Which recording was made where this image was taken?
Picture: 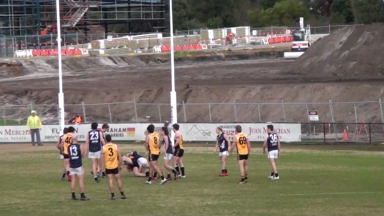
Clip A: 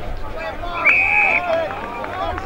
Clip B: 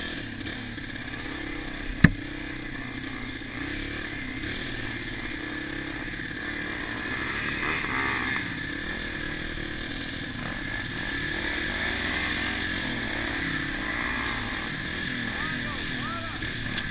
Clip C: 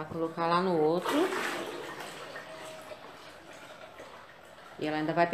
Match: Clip A